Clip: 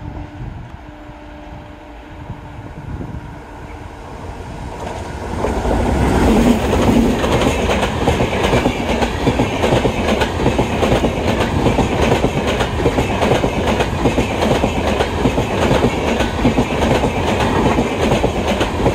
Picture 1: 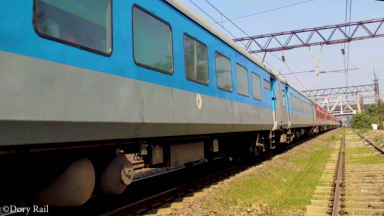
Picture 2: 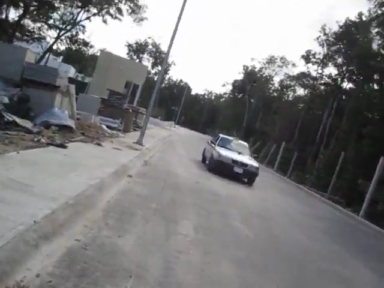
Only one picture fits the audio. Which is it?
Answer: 1